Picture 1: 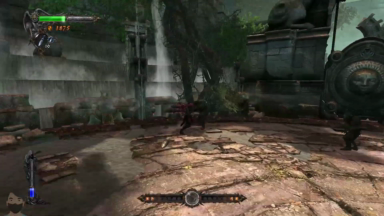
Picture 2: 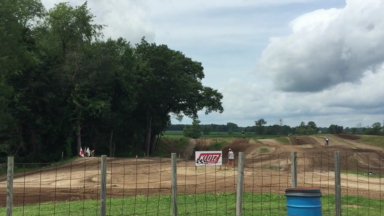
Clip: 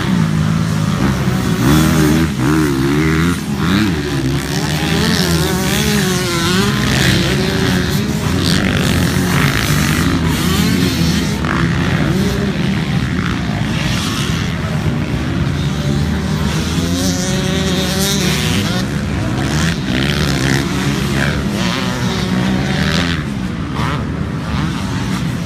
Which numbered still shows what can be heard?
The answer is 2